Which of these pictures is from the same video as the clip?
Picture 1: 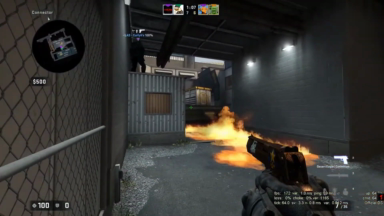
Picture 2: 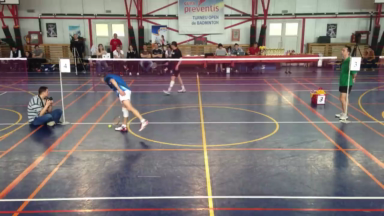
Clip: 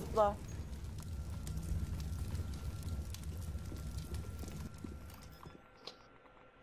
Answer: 1